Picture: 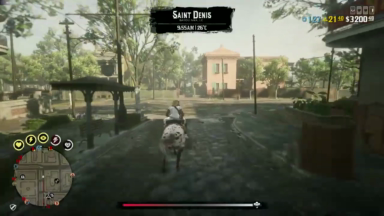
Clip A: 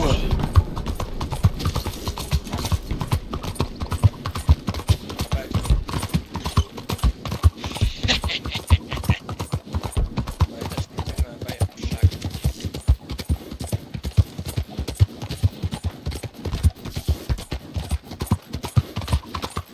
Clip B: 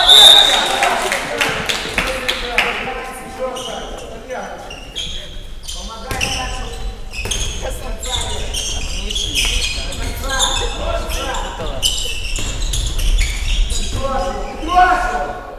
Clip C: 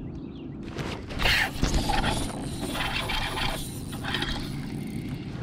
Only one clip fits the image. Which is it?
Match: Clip A